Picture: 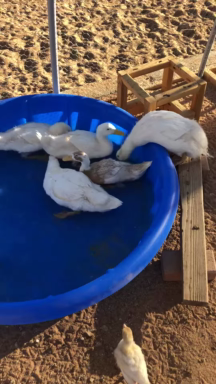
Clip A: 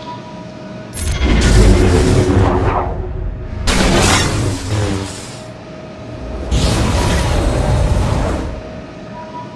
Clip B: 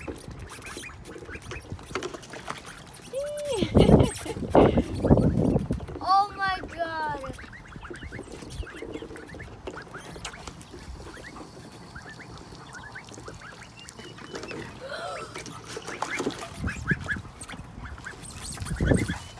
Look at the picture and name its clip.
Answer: B